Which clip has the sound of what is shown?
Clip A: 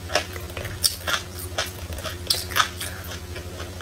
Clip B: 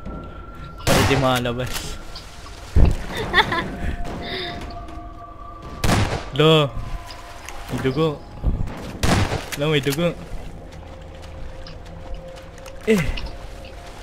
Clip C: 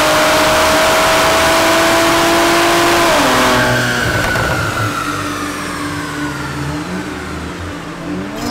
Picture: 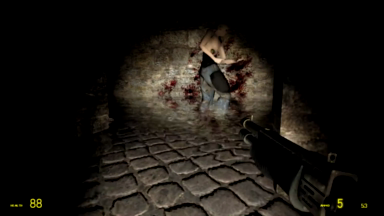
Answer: B